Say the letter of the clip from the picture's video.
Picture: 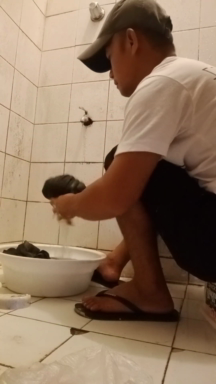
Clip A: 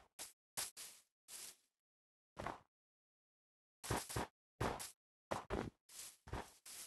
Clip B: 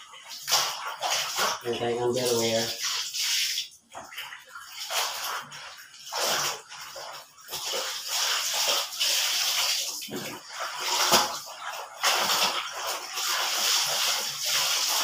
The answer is B